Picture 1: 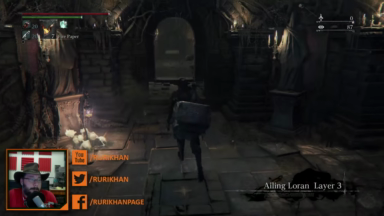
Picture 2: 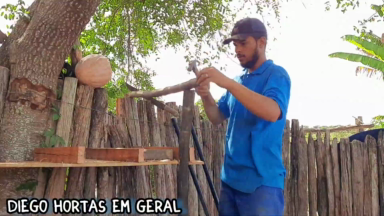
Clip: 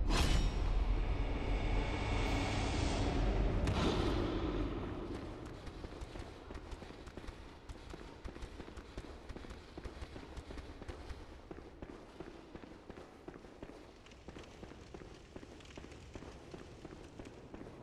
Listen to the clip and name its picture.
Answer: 1